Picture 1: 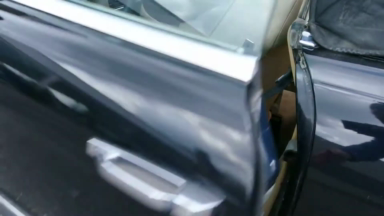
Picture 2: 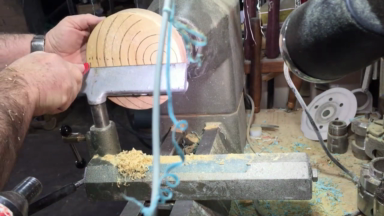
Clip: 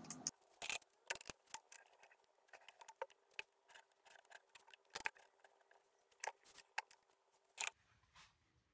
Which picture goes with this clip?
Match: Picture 2